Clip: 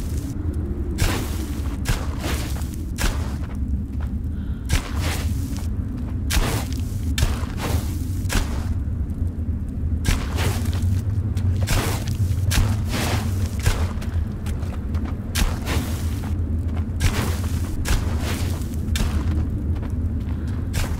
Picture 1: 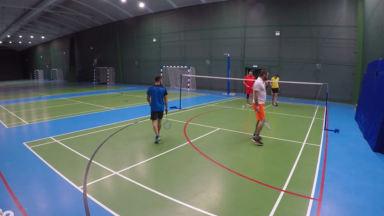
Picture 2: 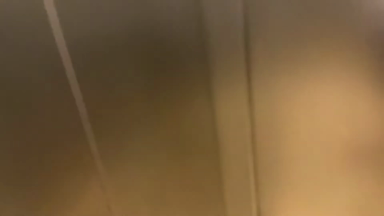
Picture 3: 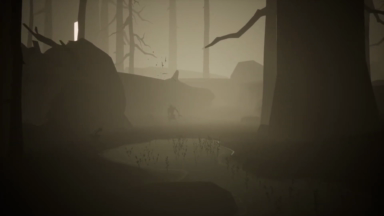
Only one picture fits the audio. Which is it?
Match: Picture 3